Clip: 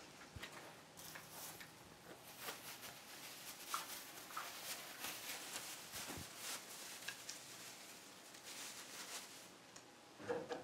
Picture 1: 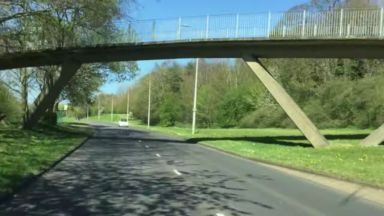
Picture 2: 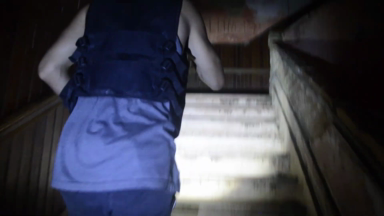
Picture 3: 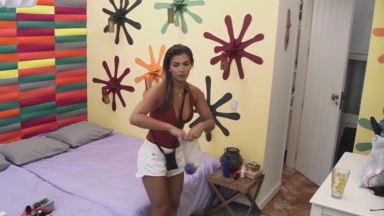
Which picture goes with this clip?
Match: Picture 3